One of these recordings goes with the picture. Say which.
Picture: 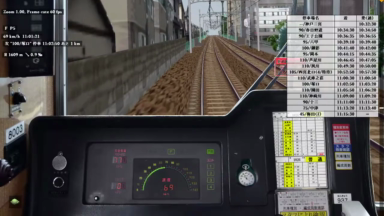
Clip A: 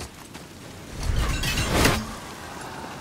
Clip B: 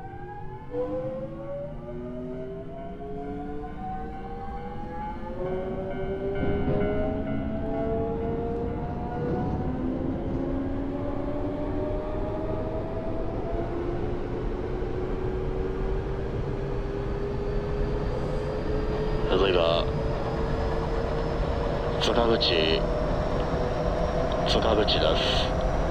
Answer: B